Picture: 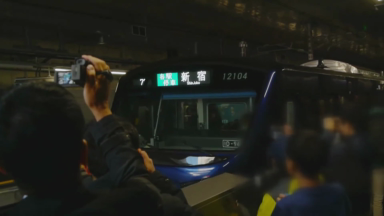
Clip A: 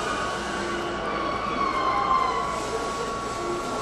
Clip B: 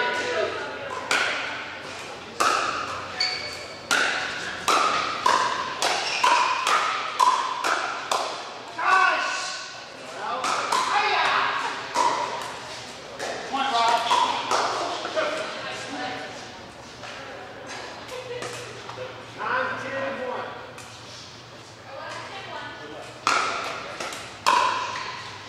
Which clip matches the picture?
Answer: A